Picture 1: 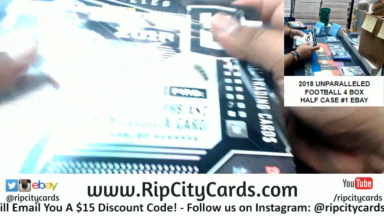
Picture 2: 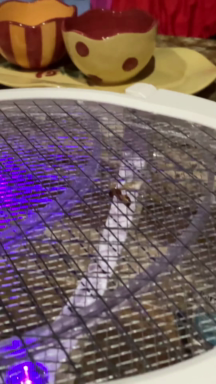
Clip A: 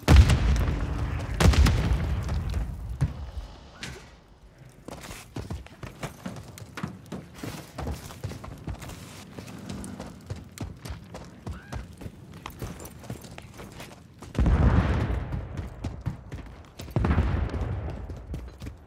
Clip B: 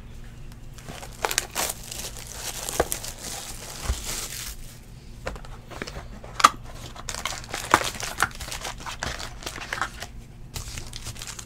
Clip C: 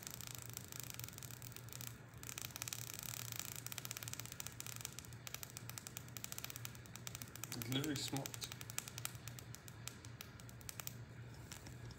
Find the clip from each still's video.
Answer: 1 B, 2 C